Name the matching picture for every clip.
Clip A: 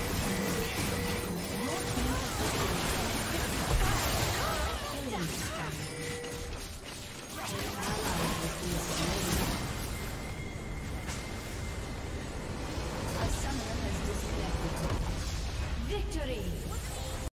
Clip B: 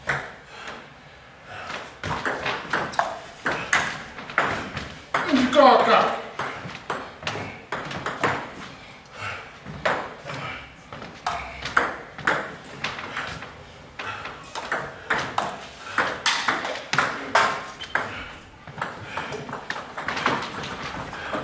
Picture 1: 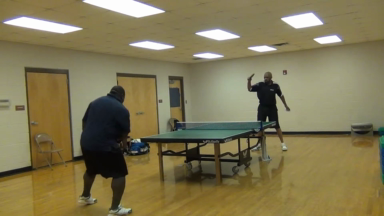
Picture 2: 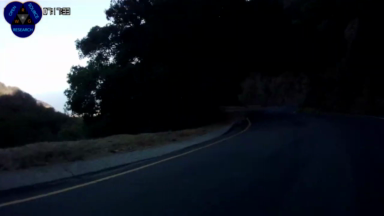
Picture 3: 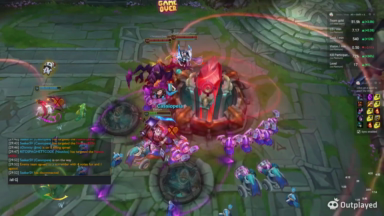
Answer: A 3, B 1